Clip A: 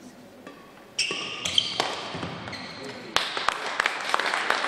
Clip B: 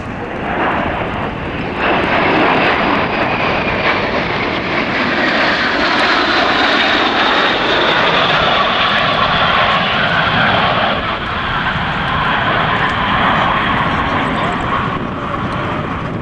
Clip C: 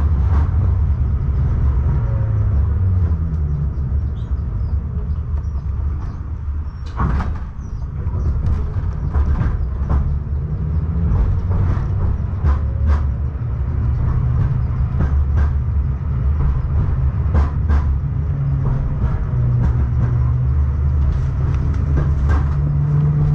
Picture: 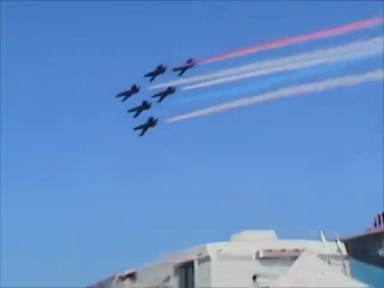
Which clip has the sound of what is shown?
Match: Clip B